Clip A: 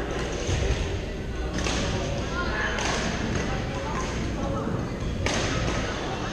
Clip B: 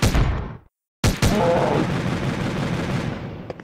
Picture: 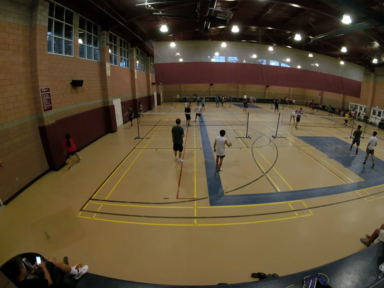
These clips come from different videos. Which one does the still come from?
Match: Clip A